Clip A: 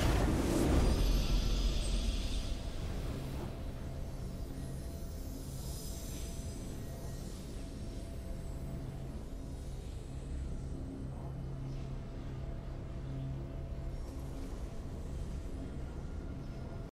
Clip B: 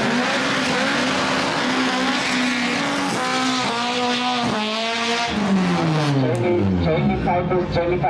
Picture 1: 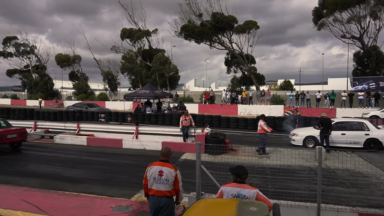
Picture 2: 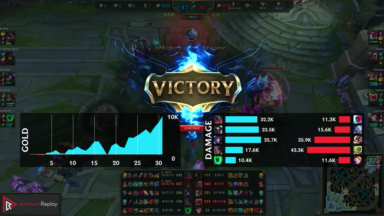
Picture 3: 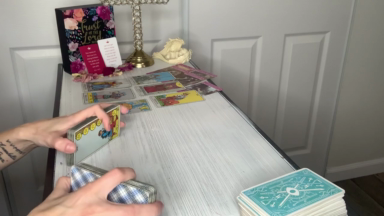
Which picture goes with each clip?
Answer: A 2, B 1